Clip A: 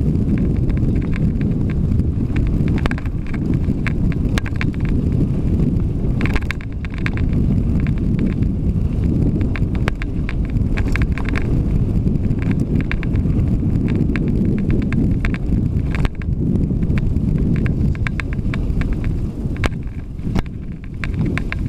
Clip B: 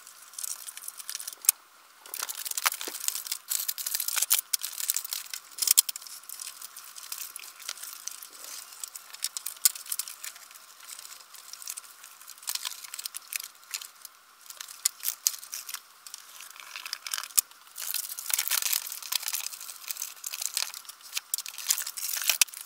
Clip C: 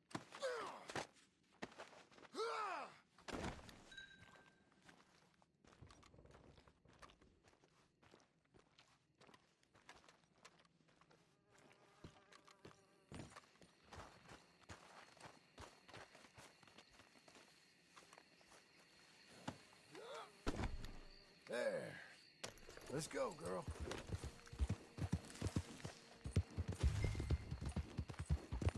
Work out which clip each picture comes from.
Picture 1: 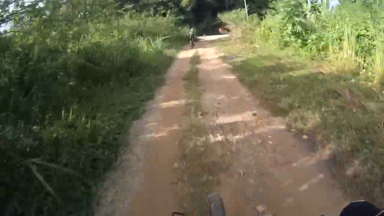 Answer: A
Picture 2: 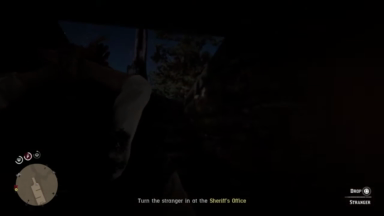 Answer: C